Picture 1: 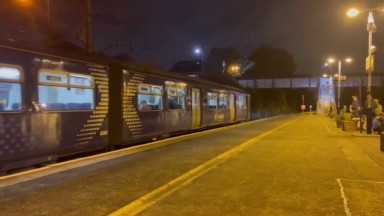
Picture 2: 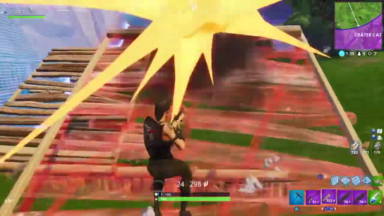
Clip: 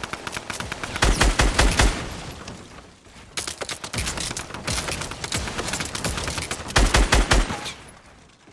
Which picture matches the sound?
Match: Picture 2